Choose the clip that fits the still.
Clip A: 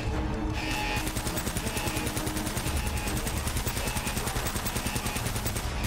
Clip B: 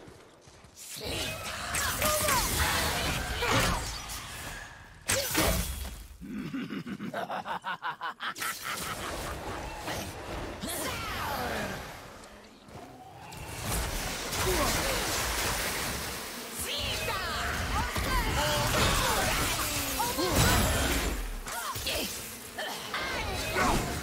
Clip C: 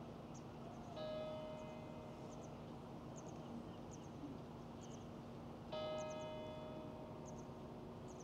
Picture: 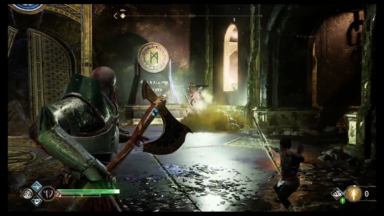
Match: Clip B